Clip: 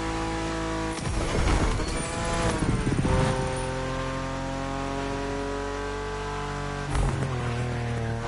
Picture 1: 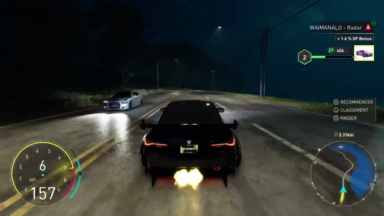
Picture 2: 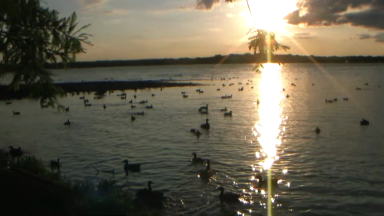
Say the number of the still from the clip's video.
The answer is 1